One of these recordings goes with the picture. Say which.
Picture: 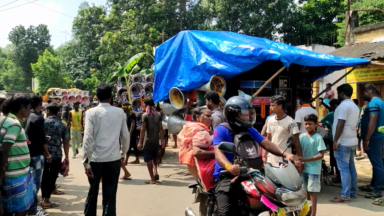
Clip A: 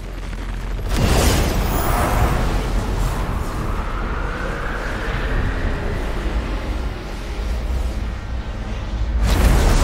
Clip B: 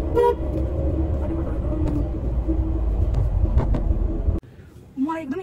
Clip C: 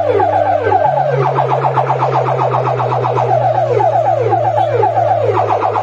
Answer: C